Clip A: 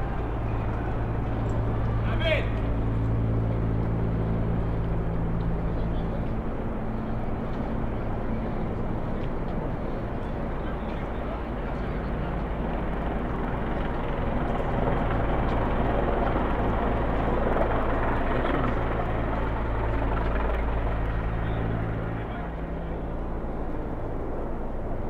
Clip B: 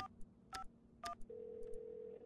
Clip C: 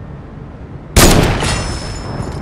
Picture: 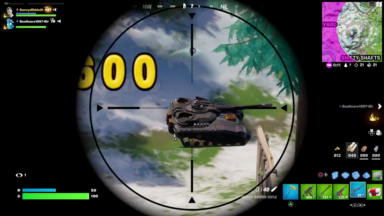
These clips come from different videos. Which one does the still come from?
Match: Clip C